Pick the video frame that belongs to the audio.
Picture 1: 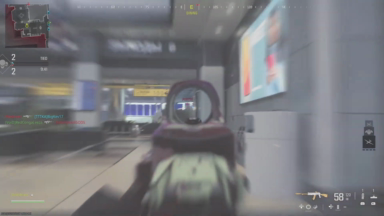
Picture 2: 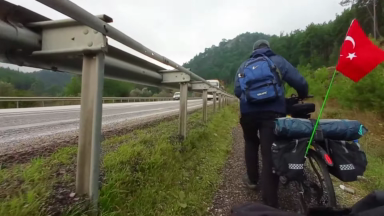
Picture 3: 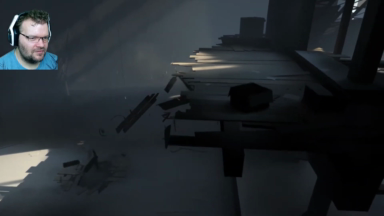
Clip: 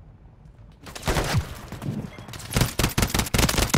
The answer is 1